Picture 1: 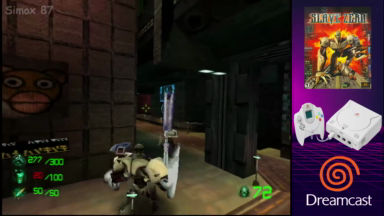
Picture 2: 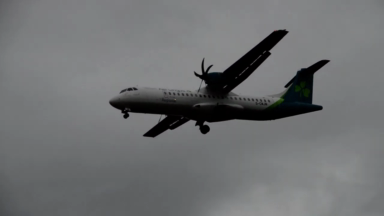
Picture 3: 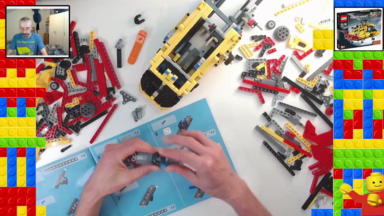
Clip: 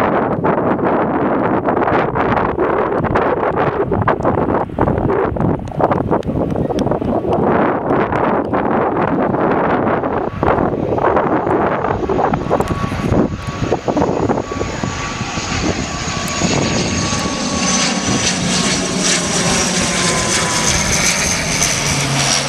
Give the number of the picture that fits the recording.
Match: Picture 2